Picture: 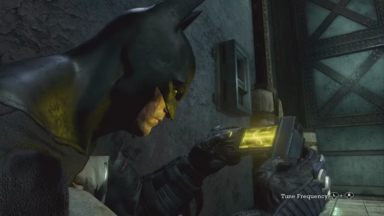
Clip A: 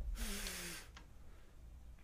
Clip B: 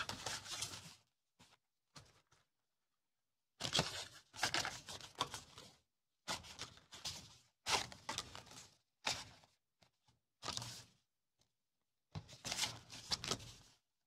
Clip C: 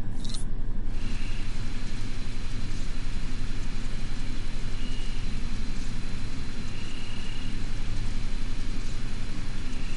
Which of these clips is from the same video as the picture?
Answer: C